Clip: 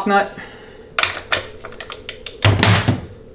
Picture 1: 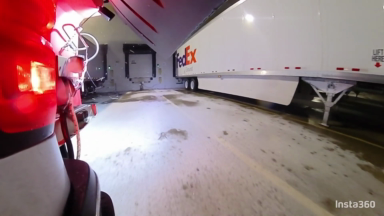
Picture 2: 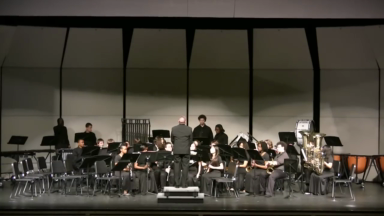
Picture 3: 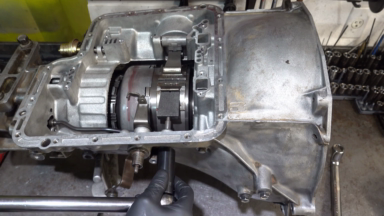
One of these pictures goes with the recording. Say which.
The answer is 3